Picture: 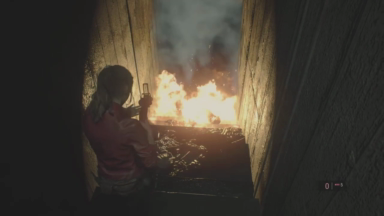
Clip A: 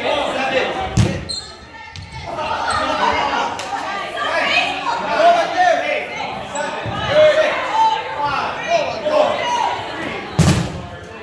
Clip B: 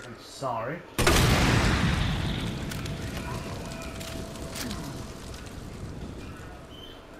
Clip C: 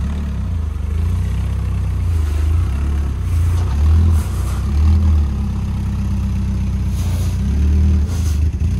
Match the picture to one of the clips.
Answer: B